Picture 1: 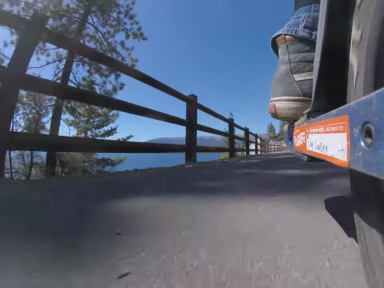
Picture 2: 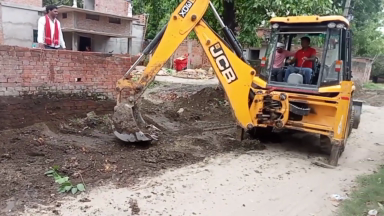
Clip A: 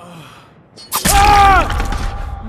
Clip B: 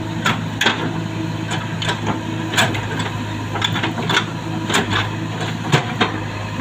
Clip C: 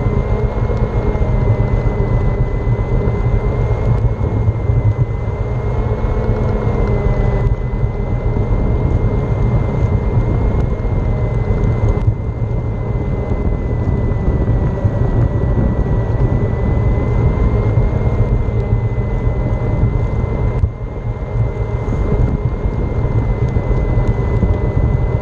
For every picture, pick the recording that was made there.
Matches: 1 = C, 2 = B